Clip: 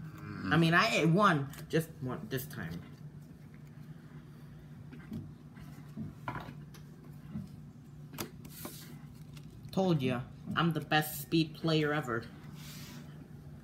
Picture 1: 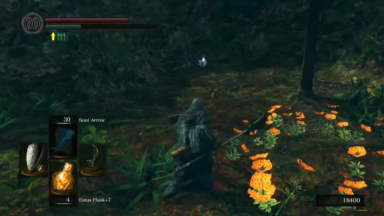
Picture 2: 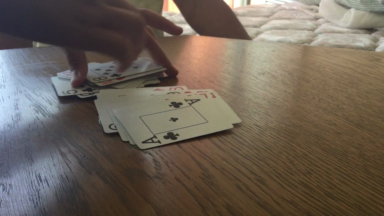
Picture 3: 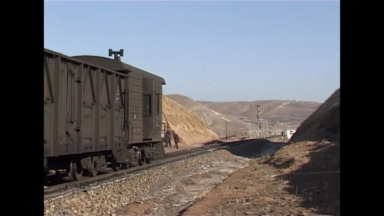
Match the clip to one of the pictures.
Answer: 2